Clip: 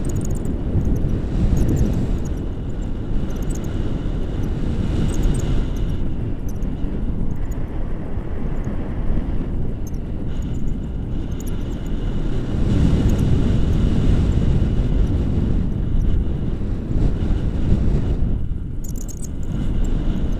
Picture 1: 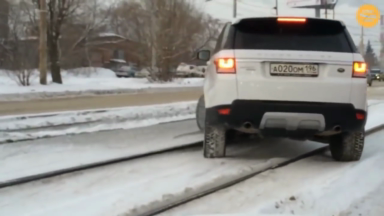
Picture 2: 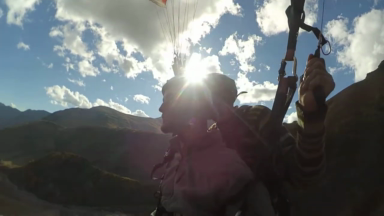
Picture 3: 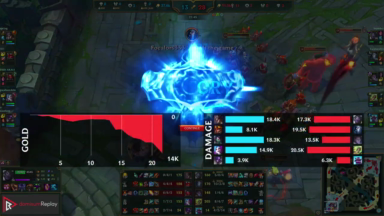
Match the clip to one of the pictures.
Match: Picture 2